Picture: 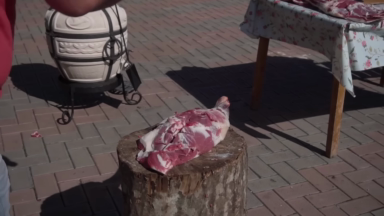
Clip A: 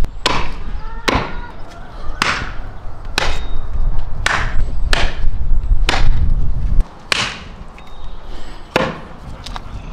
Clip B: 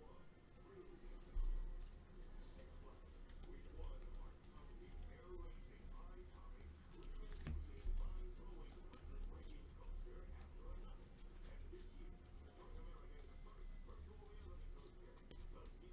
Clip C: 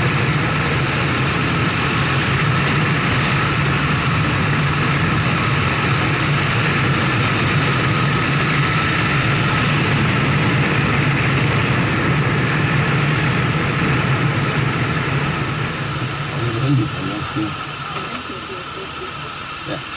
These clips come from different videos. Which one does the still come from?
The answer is A